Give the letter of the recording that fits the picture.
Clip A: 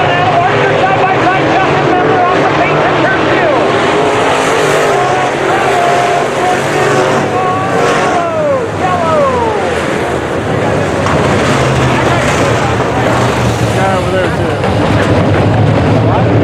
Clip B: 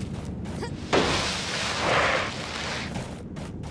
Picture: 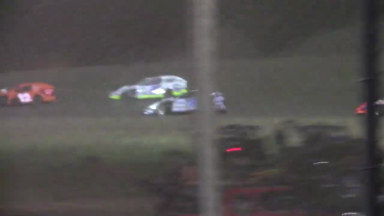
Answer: A